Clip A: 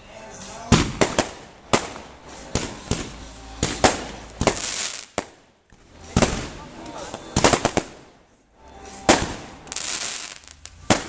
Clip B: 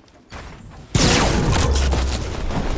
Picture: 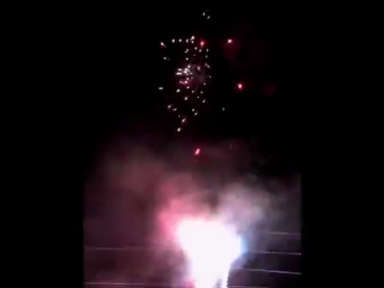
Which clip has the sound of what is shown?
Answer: A